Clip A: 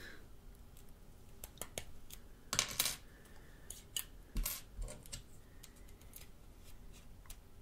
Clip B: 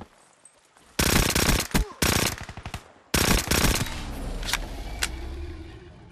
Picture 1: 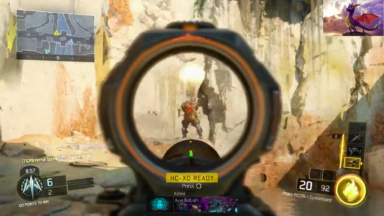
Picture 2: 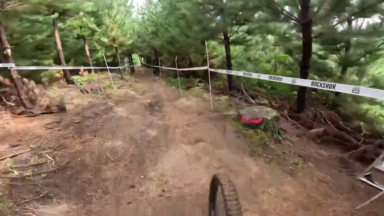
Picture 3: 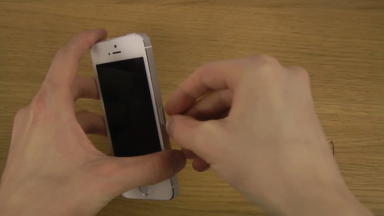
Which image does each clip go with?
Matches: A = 3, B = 1